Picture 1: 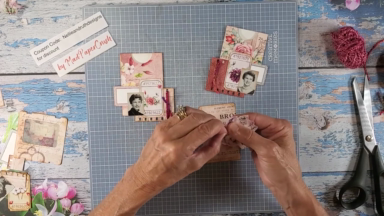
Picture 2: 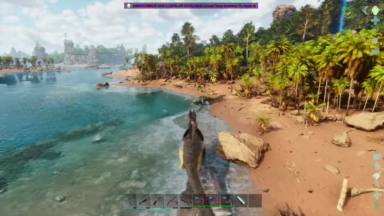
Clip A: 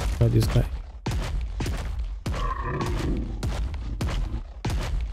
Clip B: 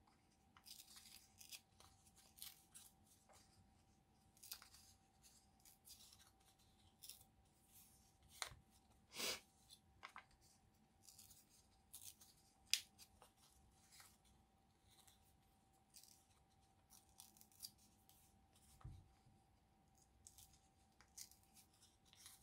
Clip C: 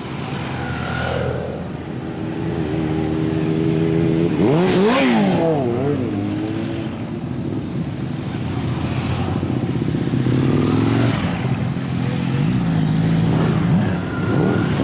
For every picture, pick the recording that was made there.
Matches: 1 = B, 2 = A